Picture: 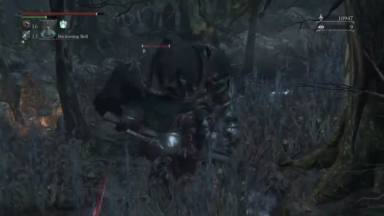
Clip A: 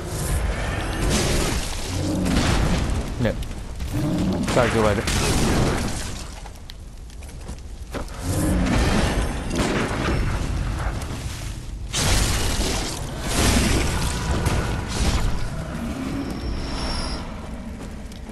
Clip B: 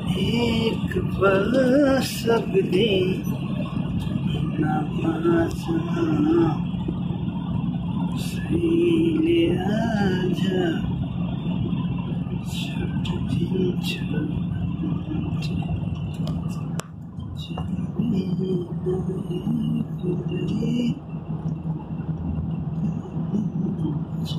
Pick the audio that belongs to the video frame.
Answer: A